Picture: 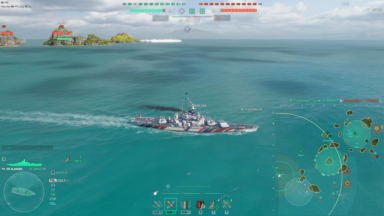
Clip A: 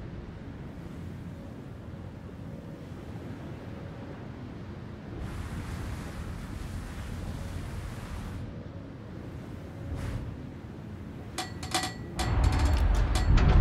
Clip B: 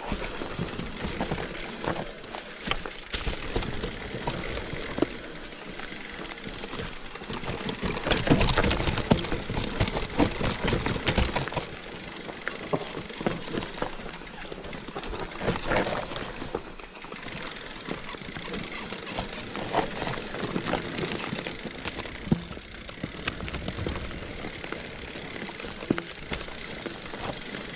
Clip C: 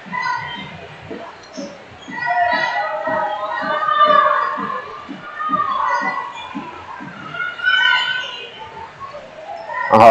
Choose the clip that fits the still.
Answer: A